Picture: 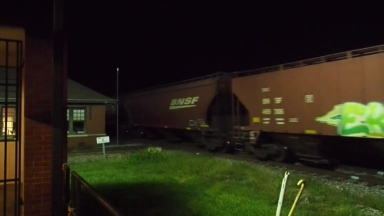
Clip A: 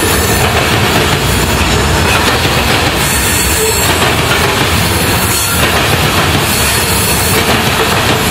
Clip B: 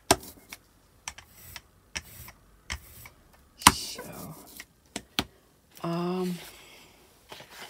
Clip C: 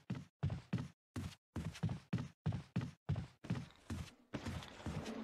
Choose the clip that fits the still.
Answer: A